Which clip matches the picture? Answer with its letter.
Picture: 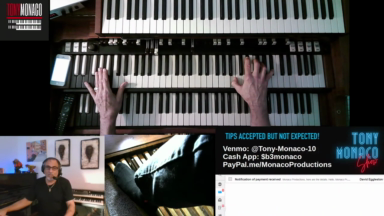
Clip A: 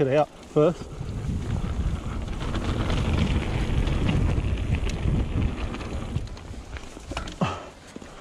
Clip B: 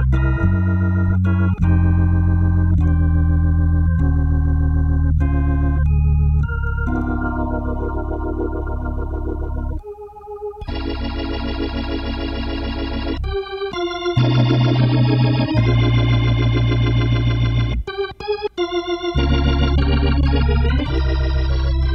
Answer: B